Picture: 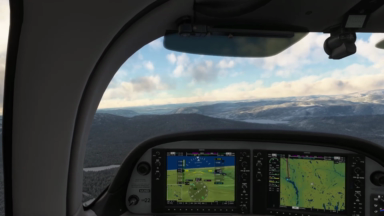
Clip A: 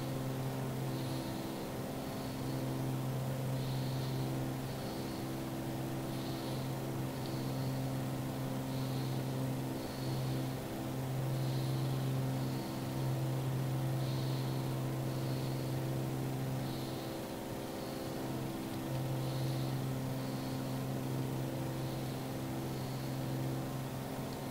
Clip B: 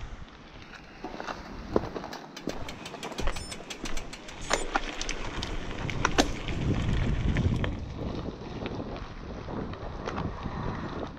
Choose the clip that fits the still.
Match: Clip A